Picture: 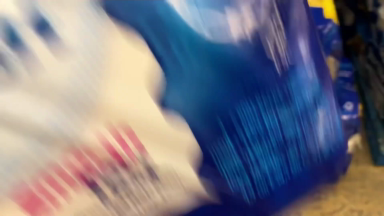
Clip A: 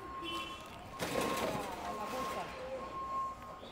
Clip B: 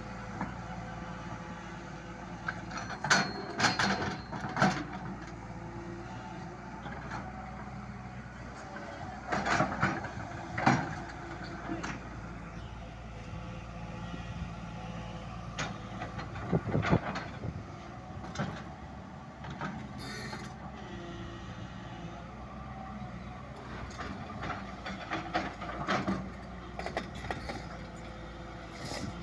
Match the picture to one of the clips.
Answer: A